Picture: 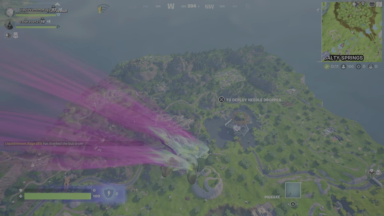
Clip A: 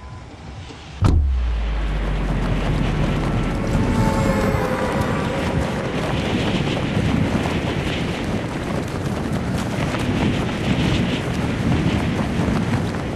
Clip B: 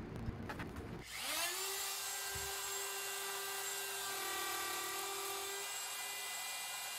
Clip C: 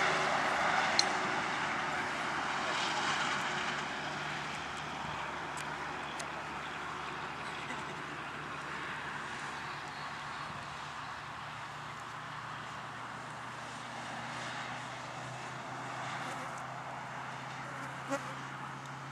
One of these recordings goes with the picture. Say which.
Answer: A